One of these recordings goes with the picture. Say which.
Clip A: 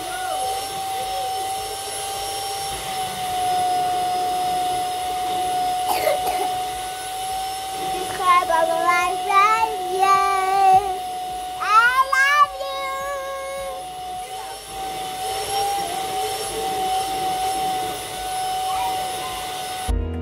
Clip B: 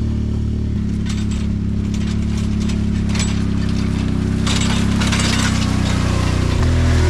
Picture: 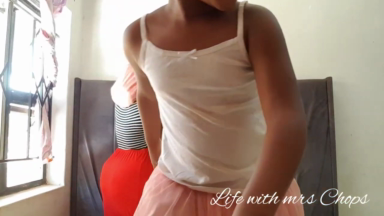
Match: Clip A